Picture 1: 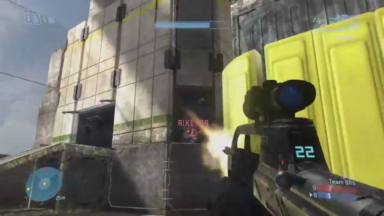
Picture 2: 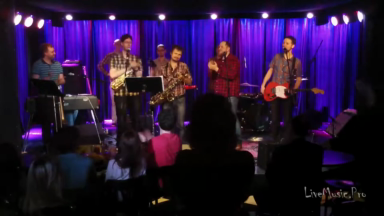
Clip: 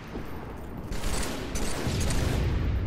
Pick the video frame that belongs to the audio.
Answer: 1